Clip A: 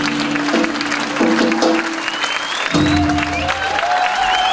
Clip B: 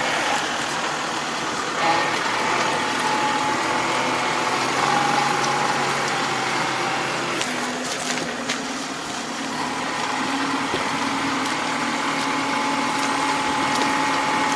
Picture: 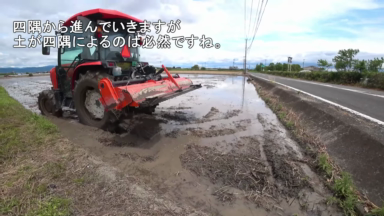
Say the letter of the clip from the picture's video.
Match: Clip B